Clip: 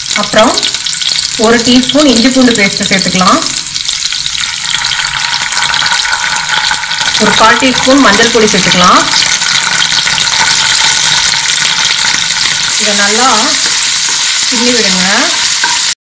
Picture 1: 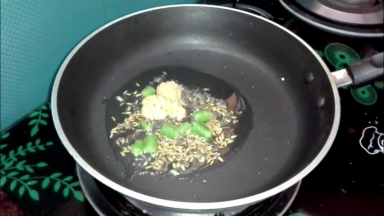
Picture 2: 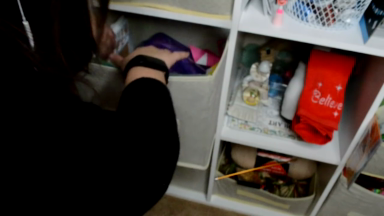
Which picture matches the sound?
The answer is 1